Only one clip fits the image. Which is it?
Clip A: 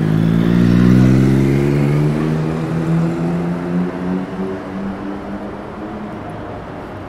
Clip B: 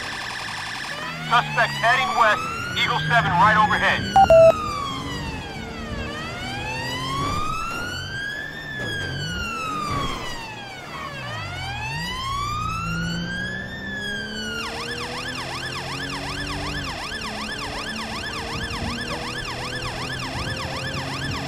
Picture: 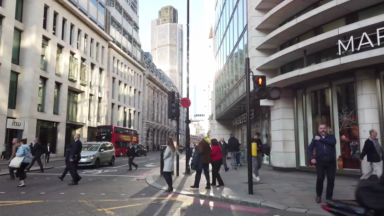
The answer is A